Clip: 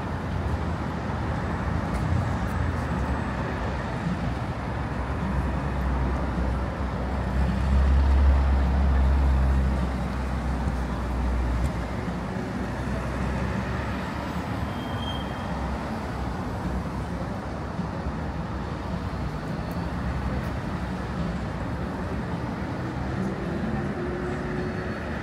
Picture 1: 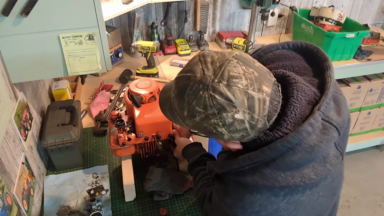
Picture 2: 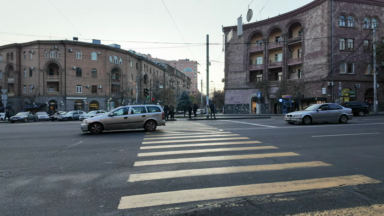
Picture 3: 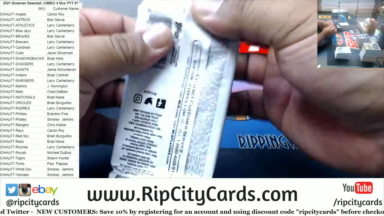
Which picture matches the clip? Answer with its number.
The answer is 2